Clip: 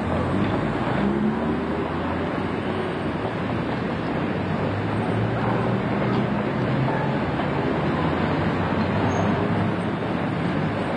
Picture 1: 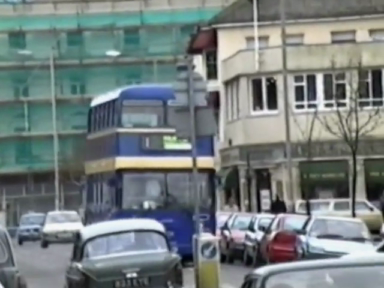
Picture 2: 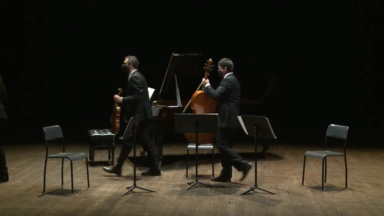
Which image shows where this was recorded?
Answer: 1